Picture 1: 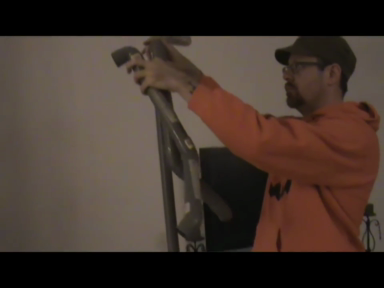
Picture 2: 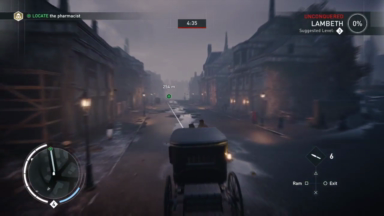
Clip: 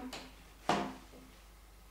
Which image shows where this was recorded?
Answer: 1